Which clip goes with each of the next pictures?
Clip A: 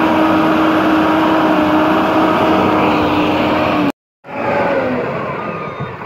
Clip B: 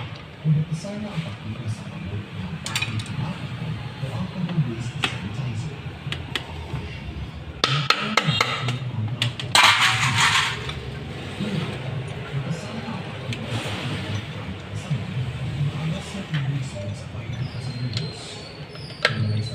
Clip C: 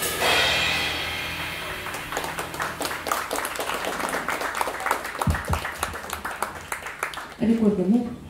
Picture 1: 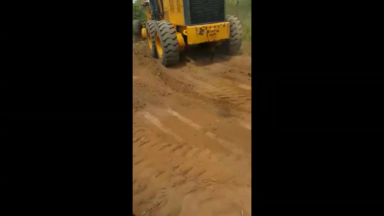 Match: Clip A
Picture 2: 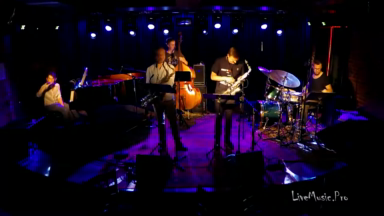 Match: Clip C